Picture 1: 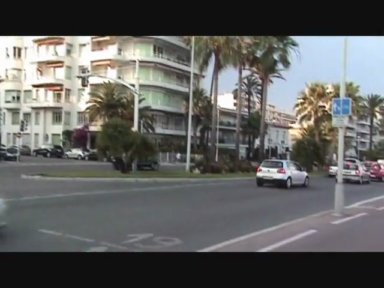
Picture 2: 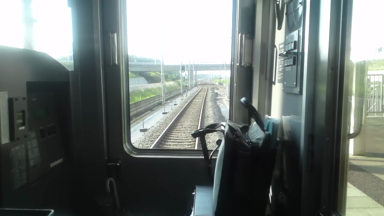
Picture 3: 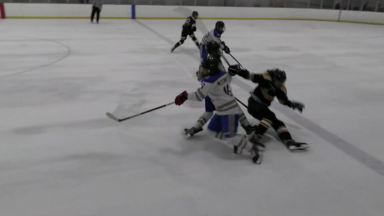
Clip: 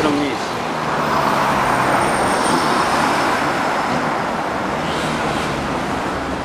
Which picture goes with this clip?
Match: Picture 1